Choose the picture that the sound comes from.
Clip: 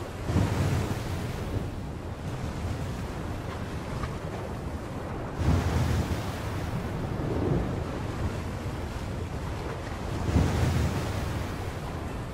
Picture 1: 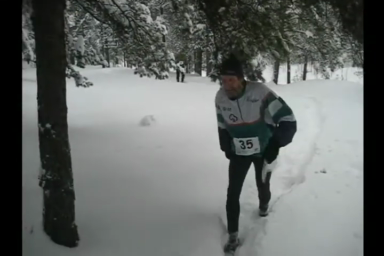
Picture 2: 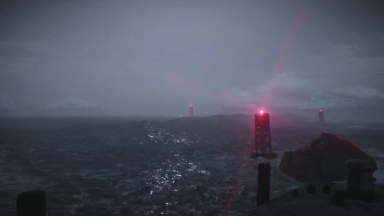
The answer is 2